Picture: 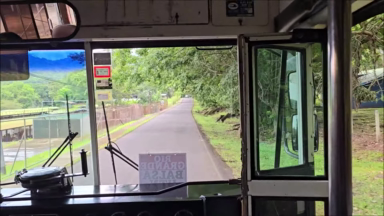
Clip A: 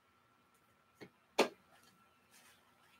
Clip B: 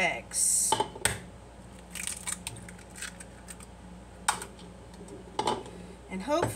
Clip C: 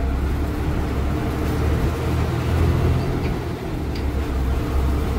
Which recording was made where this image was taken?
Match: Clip C